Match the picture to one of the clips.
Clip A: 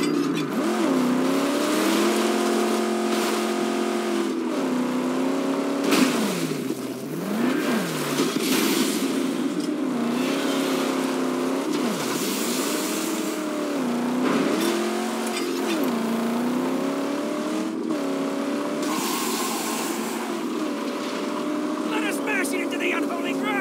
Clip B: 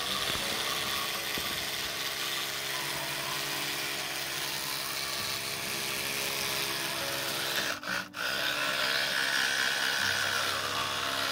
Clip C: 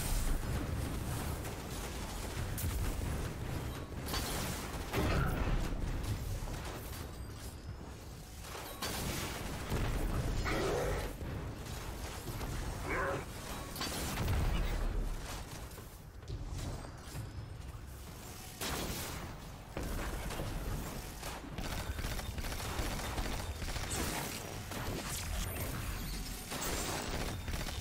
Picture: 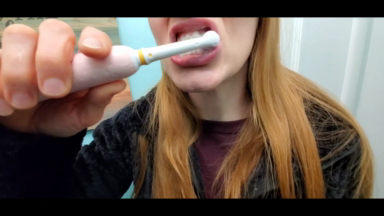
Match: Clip B